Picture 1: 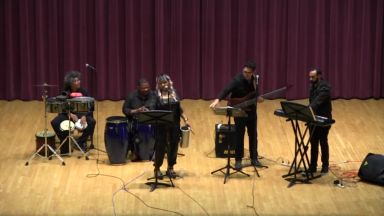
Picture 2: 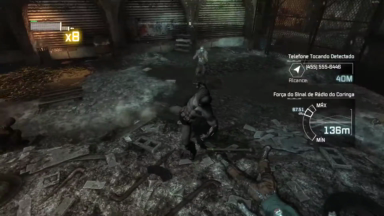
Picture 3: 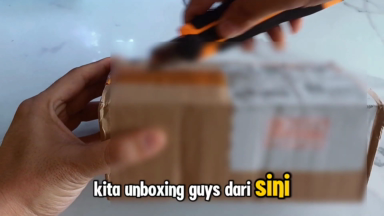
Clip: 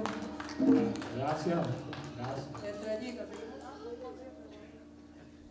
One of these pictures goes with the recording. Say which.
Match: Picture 1